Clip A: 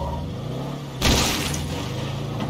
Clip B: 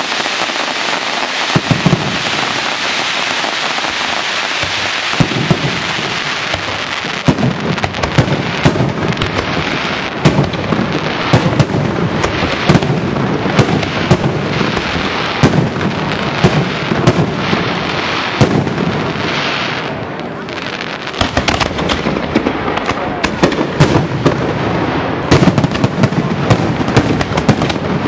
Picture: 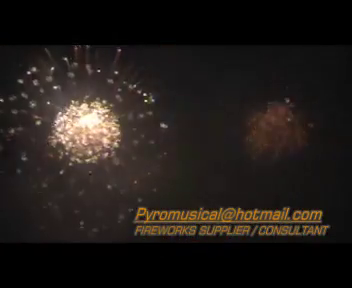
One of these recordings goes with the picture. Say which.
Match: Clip B